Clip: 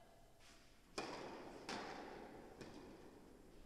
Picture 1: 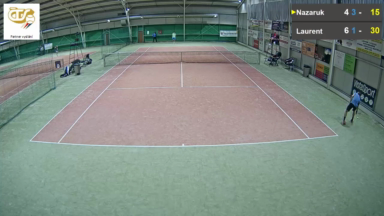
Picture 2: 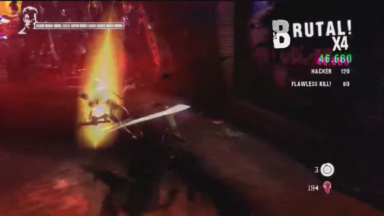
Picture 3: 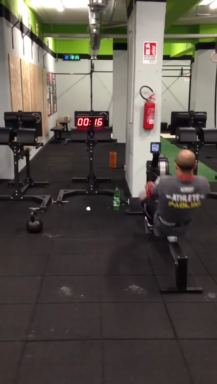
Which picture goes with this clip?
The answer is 1